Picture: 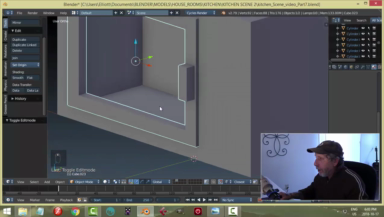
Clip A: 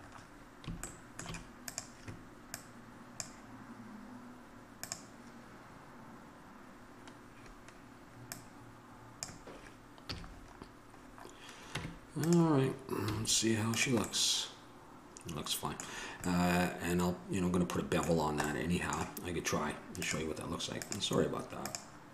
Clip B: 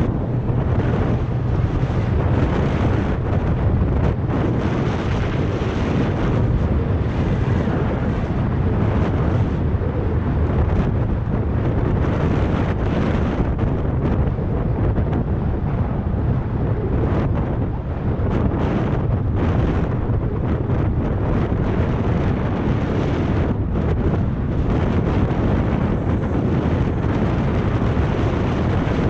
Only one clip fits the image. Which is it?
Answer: A